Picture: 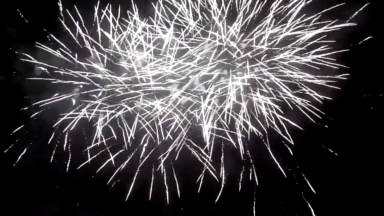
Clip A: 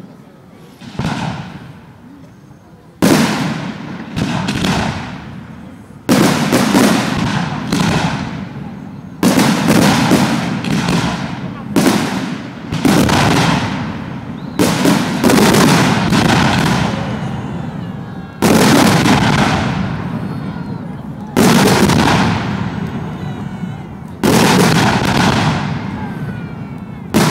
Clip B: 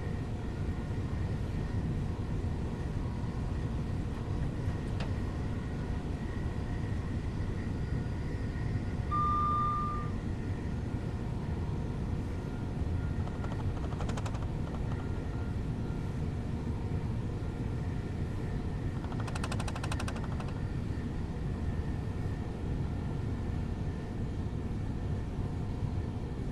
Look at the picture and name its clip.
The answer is A